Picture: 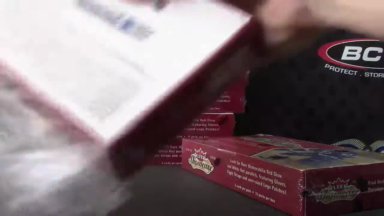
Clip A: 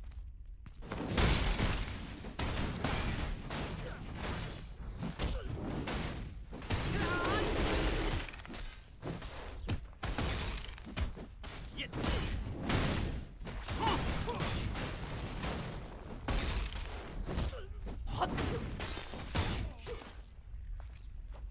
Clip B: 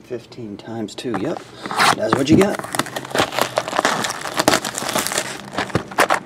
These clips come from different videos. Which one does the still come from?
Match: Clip B